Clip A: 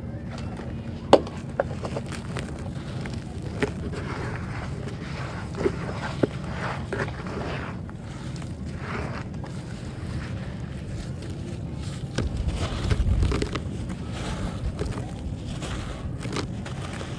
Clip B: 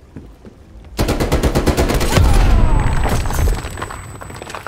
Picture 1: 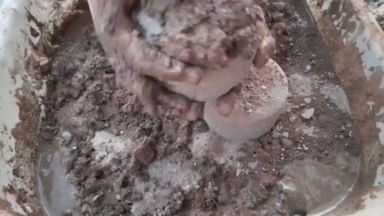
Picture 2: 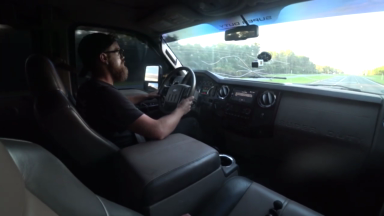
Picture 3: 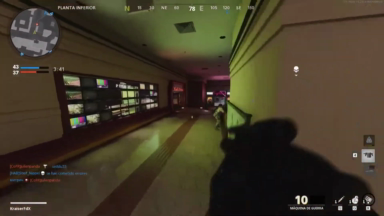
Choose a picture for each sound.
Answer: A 1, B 3